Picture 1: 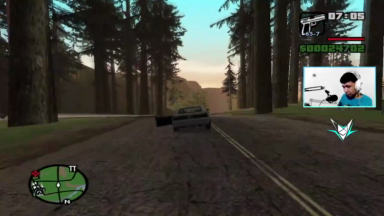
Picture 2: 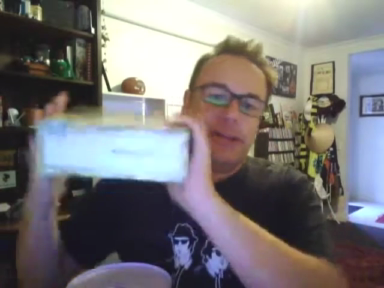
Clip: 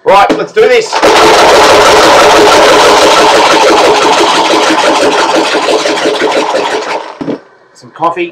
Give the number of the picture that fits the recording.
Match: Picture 2